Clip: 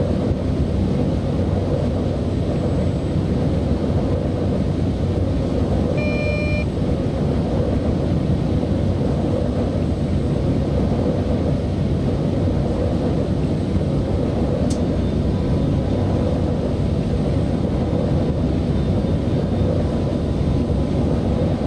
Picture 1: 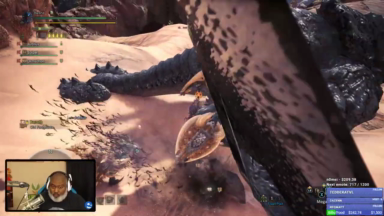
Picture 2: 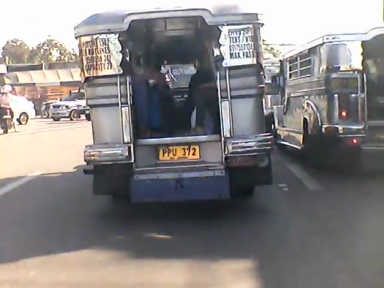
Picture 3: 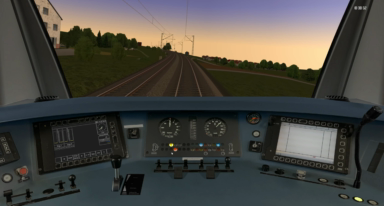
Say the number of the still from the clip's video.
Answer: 3